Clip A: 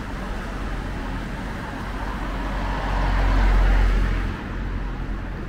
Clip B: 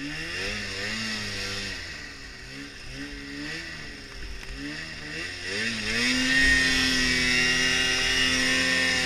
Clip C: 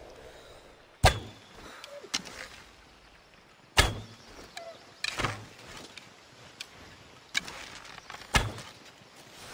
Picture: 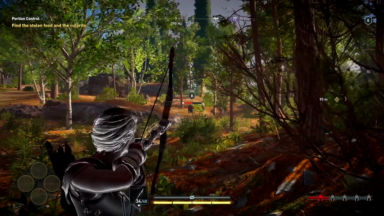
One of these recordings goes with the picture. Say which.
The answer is C